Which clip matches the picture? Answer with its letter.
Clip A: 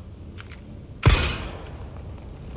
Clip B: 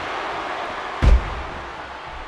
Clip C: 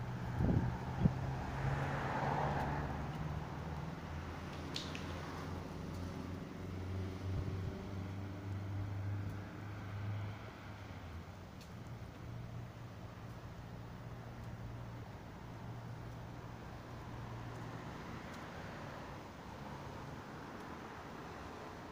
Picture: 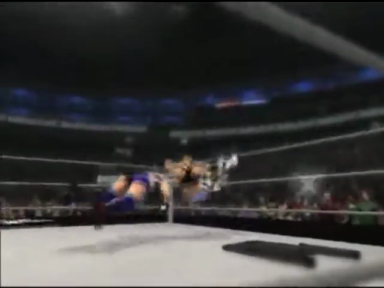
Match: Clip B